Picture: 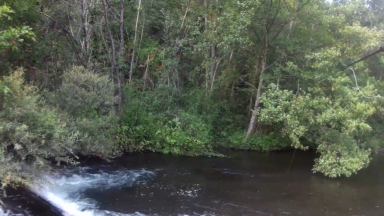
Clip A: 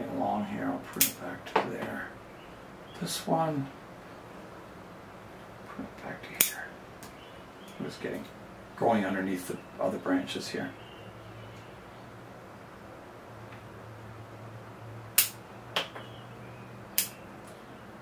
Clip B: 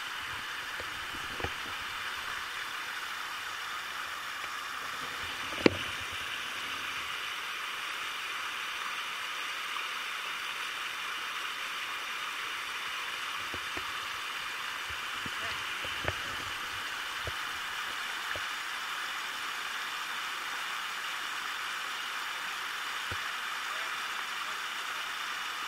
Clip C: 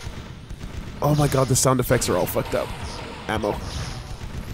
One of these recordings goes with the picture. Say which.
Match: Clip B